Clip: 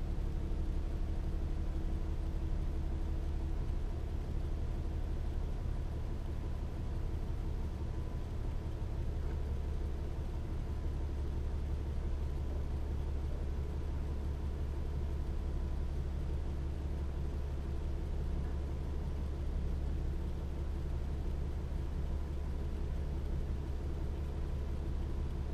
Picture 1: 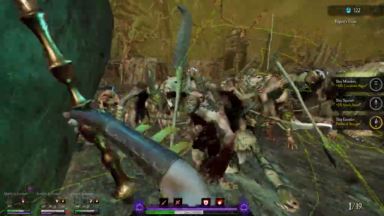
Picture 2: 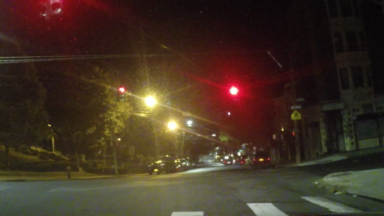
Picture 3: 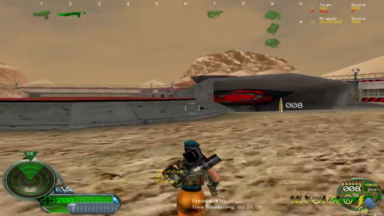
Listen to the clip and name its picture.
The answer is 2